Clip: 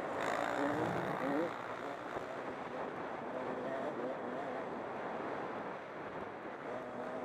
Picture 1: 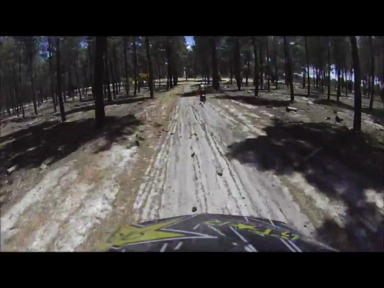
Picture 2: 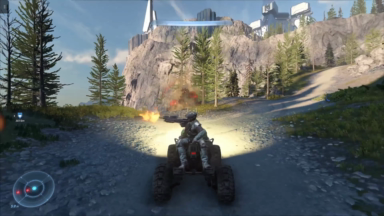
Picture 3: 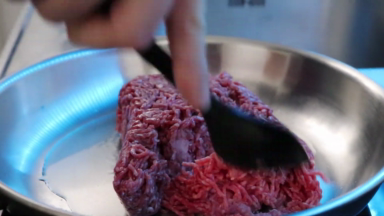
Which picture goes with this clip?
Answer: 1